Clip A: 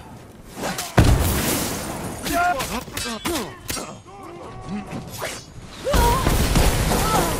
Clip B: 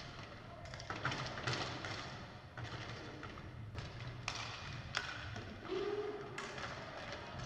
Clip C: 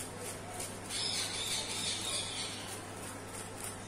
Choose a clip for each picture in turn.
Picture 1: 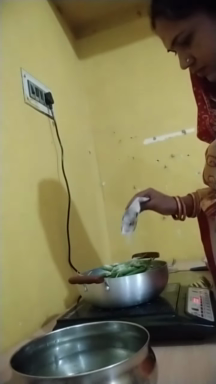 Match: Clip C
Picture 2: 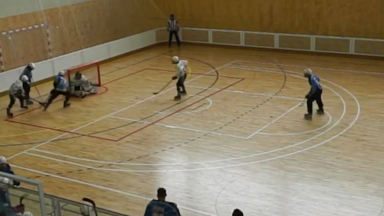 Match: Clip B